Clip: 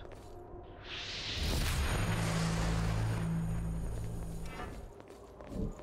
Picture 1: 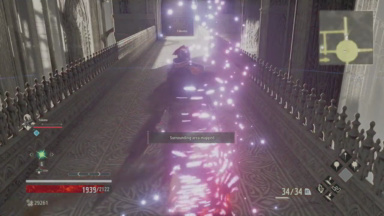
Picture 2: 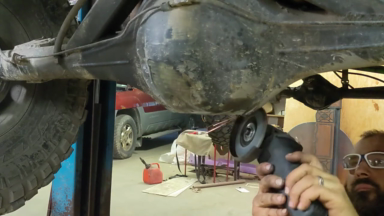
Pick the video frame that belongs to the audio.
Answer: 1